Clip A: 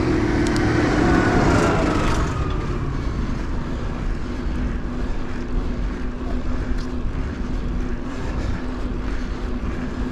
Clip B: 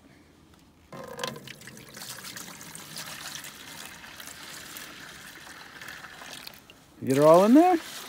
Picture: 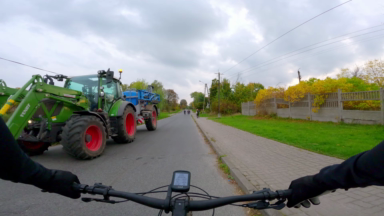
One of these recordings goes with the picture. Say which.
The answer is A